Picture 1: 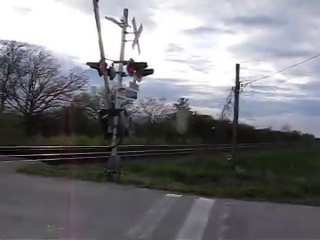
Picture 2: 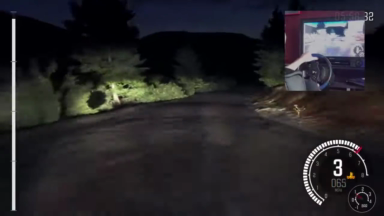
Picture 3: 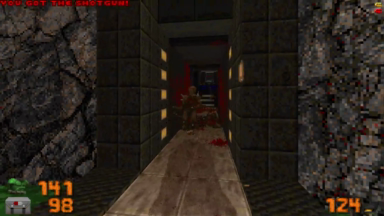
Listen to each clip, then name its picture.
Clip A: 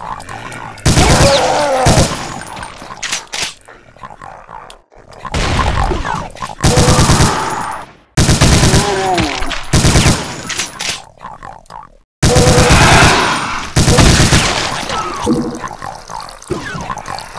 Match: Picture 3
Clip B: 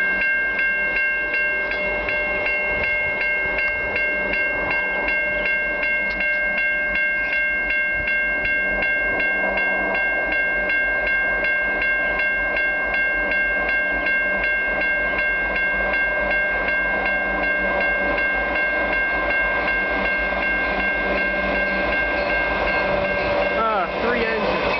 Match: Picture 1